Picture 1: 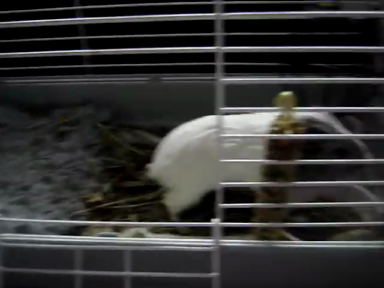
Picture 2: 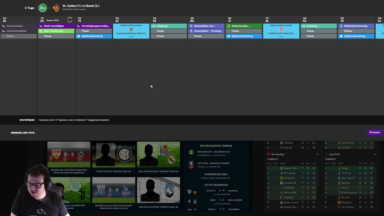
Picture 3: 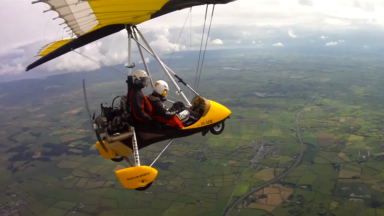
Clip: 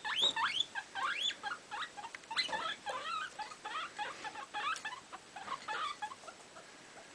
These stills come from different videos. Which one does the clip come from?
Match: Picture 1